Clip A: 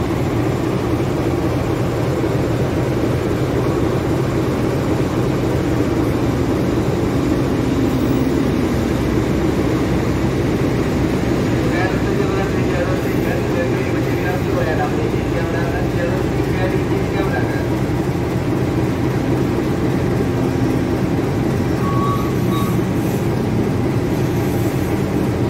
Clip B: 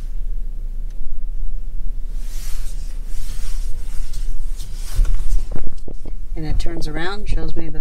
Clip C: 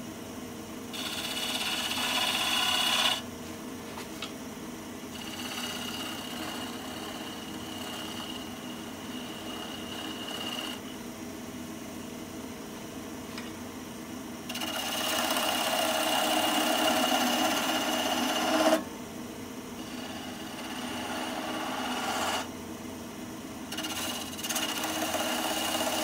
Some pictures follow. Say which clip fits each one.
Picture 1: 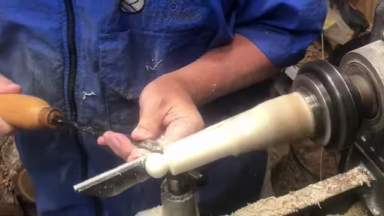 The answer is C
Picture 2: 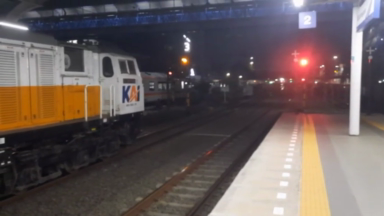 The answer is A